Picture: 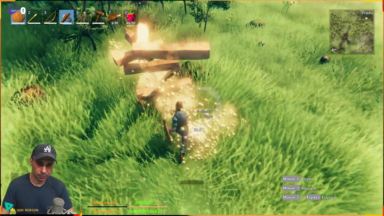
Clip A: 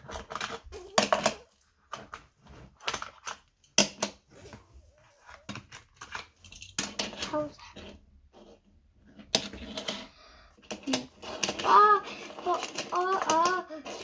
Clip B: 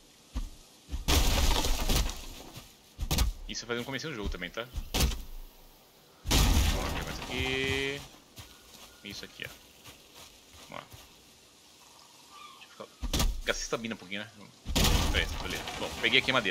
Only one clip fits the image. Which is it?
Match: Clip B